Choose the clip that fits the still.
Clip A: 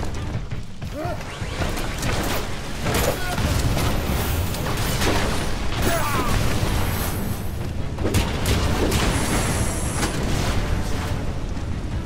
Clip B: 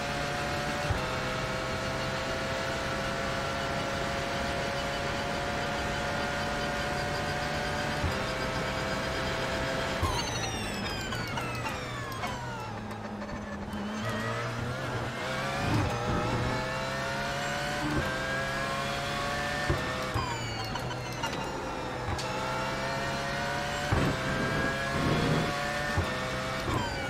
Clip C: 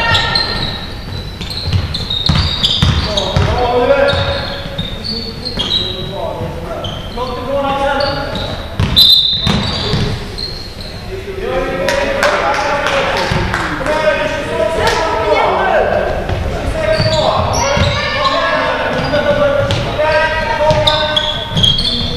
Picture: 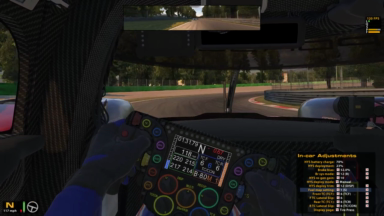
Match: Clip B